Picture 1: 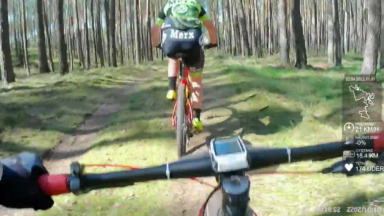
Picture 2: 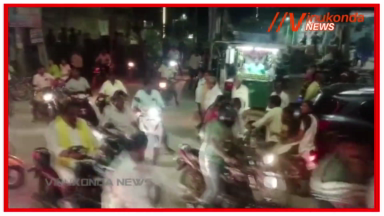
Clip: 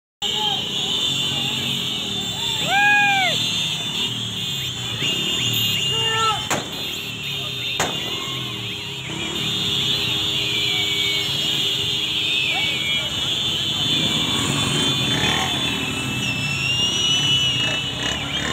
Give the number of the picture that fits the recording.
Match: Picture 2